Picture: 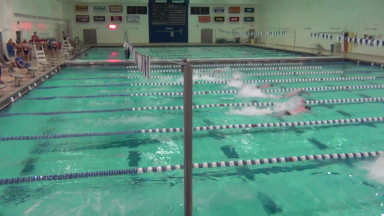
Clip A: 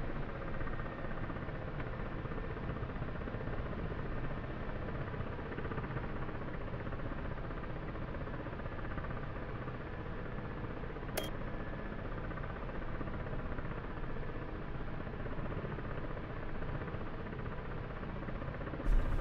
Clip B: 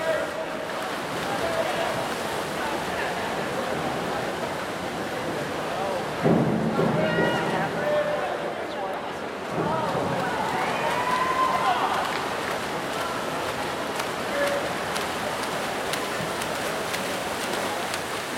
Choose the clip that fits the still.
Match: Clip B